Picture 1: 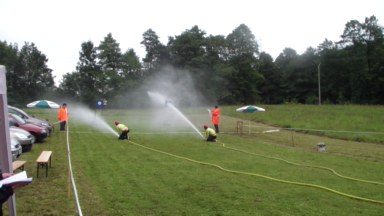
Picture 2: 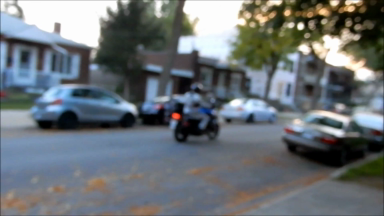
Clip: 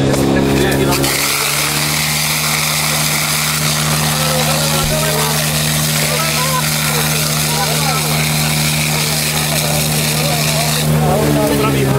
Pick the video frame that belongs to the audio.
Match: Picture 1